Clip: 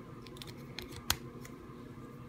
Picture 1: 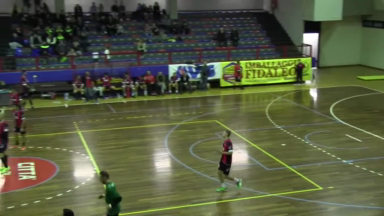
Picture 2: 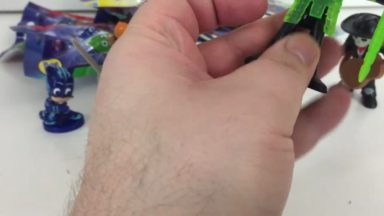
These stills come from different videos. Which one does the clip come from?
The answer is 2